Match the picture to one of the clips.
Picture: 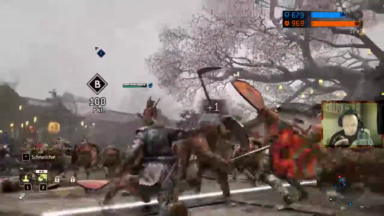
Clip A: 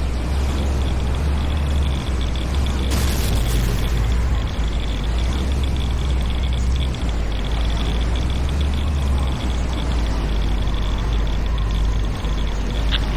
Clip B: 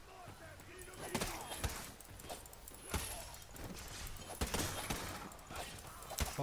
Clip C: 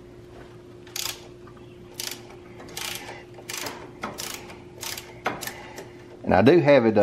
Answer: B